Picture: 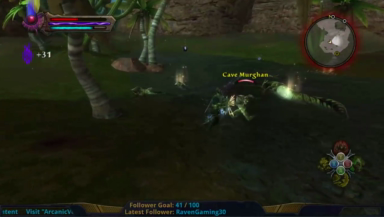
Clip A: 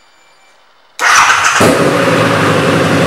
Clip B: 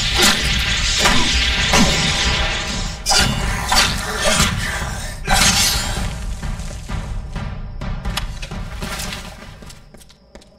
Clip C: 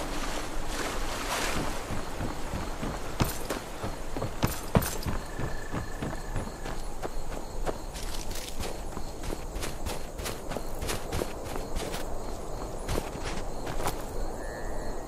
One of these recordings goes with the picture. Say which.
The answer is B